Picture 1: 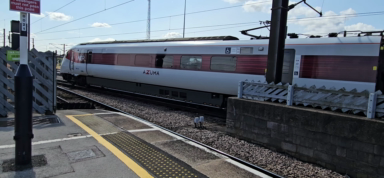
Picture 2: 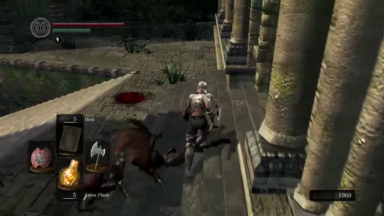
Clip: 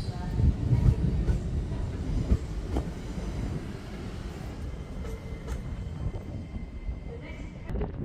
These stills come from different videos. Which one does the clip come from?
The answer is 1